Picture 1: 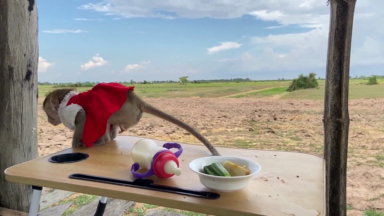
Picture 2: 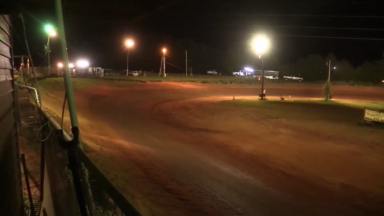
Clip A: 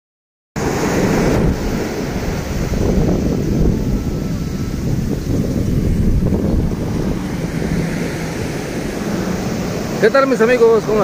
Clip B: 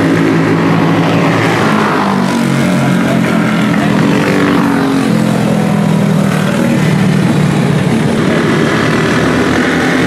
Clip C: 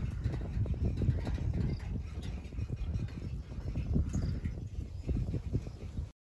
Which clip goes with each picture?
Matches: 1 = C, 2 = B